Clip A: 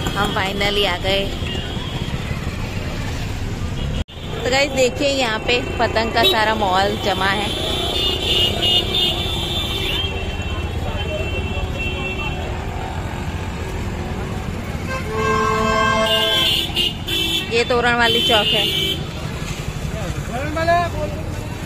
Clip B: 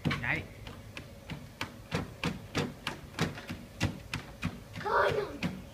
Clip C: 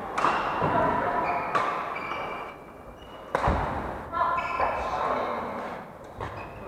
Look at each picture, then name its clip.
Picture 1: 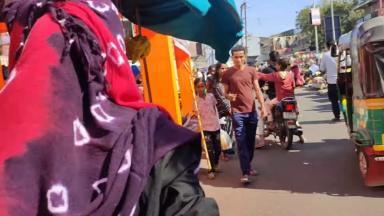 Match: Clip A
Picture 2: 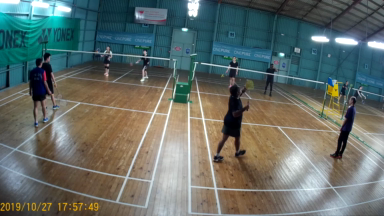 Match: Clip C